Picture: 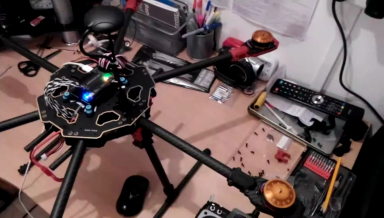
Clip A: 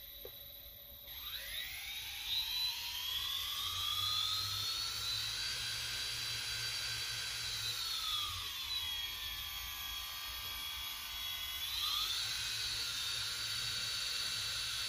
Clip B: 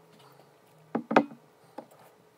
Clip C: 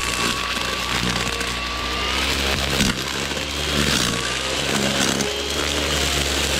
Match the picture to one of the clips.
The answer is A